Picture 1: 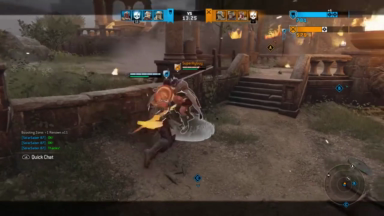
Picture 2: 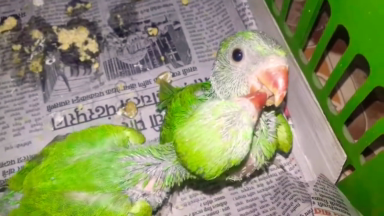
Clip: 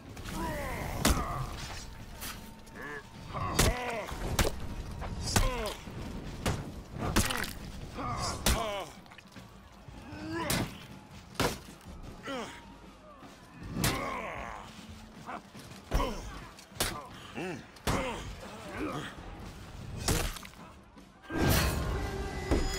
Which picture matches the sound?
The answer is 1